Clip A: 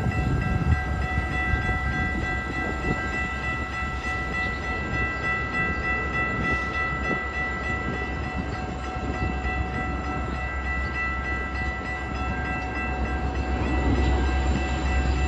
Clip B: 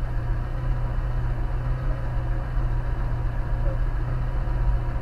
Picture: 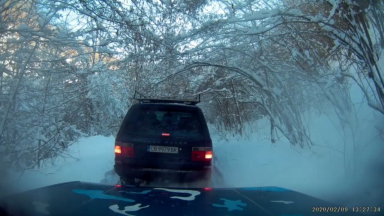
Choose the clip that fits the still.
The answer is B